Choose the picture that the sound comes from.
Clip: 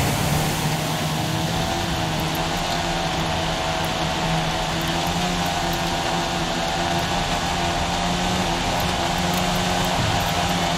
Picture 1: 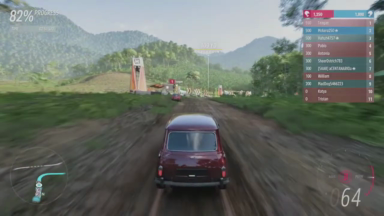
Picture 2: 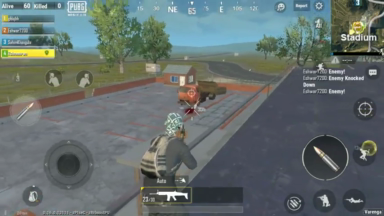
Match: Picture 1